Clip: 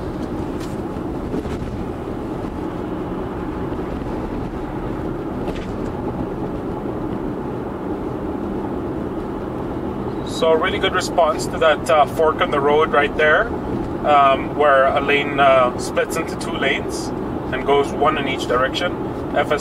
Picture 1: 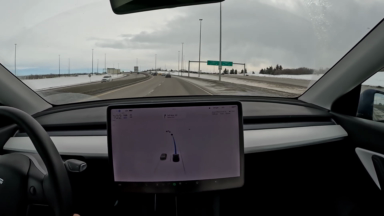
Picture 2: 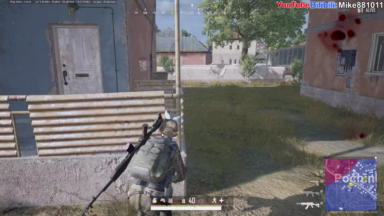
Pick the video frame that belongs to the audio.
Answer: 1